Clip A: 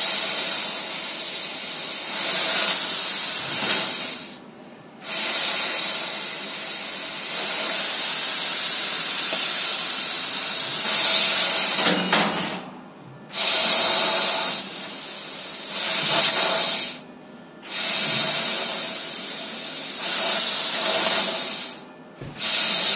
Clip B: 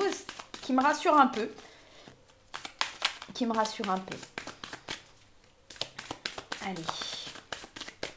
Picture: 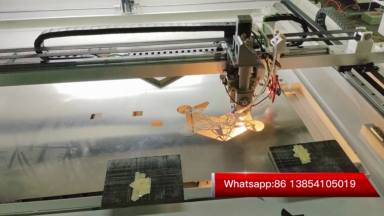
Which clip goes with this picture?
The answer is A